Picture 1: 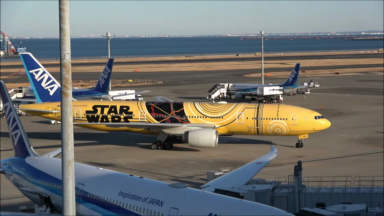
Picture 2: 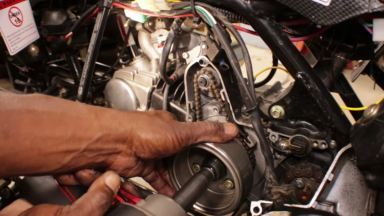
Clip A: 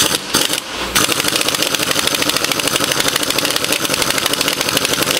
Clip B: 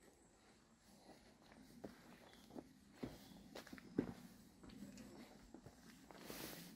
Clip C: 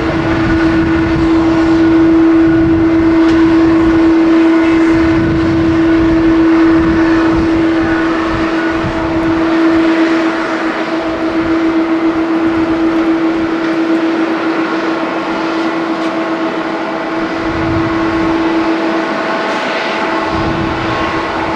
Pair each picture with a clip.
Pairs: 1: C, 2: A